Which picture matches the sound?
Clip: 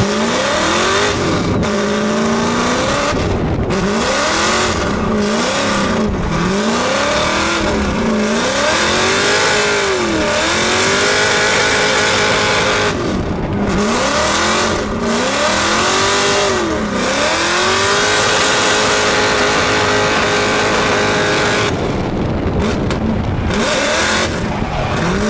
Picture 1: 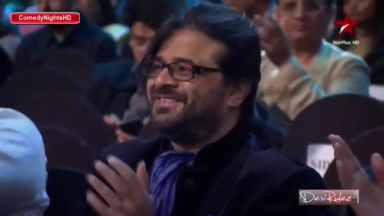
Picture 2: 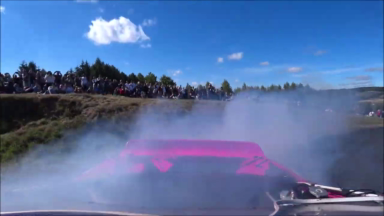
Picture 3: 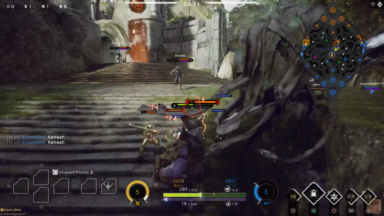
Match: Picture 2